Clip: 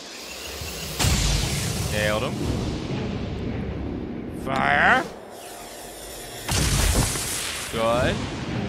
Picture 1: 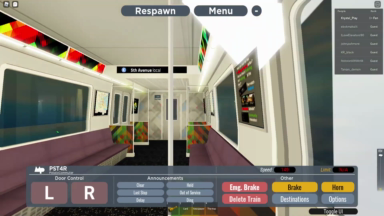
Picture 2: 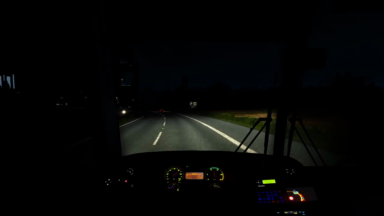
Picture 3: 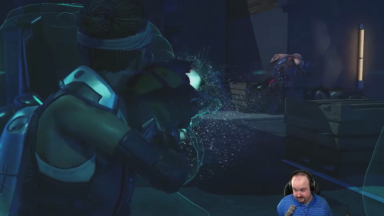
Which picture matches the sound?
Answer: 3